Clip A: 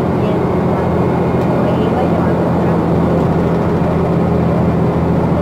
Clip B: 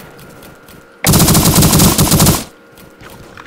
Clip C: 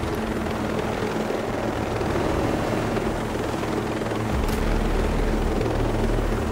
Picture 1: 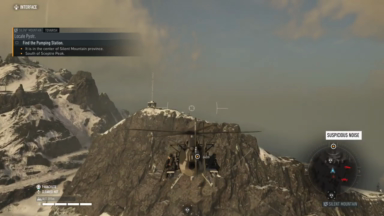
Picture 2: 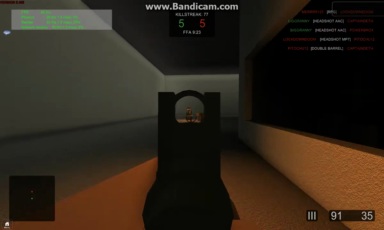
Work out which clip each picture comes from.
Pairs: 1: C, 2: B